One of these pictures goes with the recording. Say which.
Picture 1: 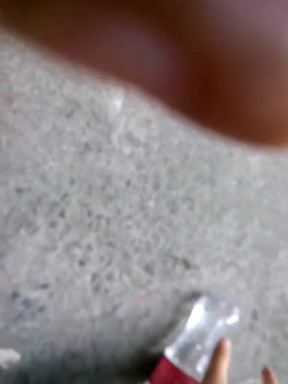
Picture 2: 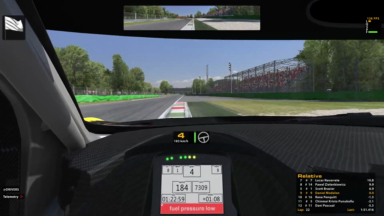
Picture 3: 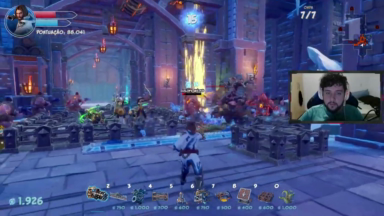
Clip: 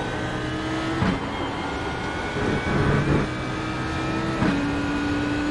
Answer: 2